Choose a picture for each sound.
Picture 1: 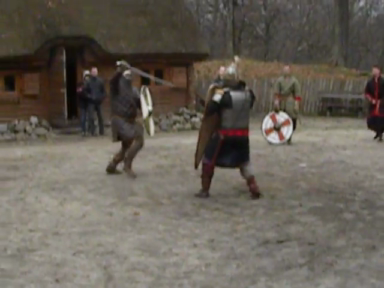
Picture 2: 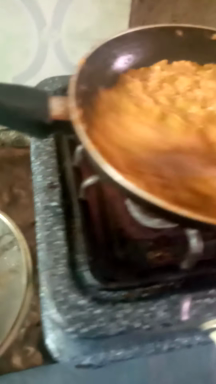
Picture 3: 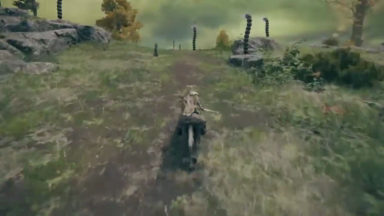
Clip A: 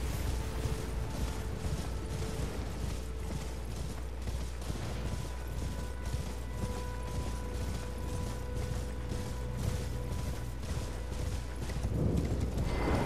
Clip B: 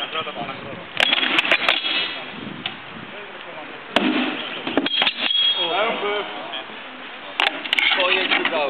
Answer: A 3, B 1